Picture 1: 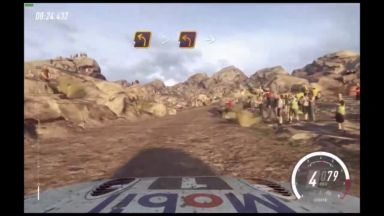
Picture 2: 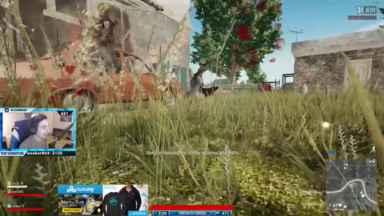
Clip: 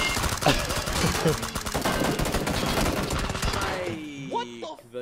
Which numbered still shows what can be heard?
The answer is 2